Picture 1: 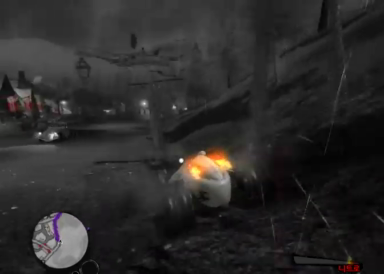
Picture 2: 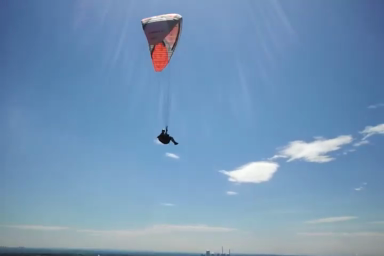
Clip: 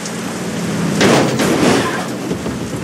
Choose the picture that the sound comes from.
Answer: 1